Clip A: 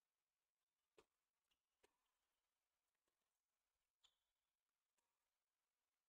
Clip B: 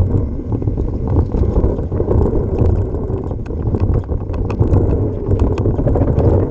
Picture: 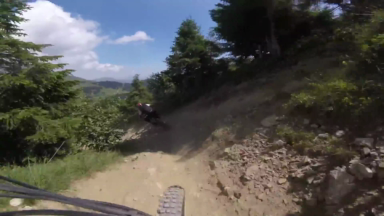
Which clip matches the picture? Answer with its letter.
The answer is B